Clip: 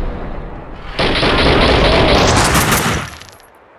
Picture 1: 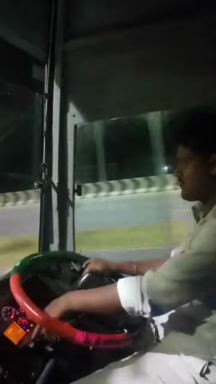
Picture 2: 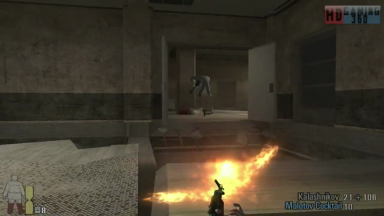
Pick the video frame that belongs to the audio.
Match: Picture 2